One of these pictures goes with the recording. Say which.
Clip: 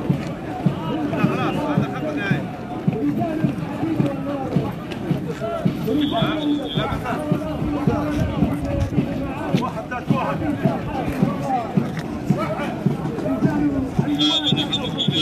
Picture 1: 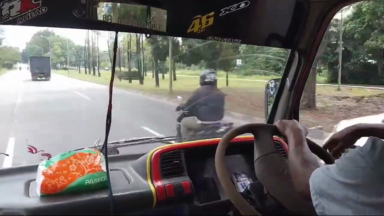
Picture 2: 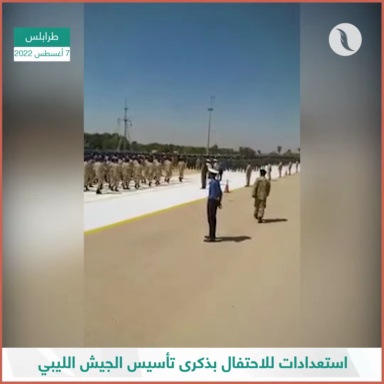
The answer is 2